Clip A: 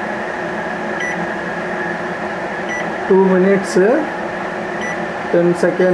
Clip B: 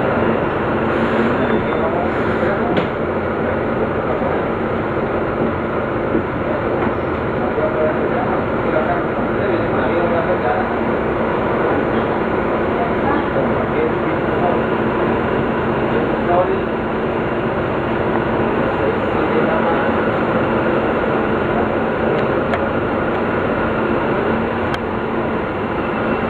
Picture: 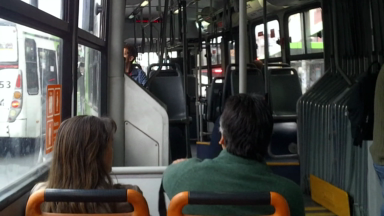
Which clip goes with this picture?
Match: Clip B